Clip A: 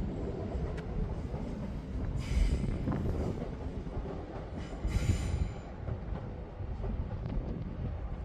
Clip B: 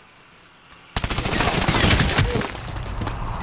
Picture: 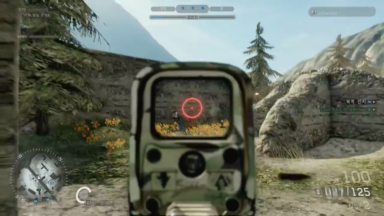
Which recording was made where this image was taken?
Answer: B